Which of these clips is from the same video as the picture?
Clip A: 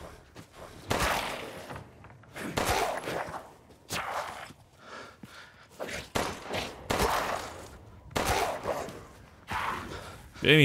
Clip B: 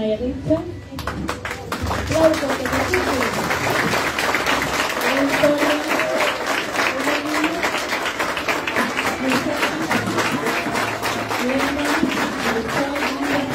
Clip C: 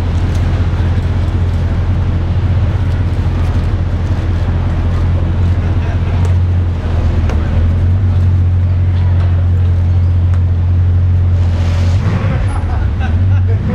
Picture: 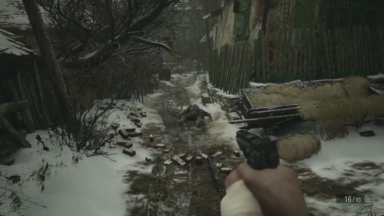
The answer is A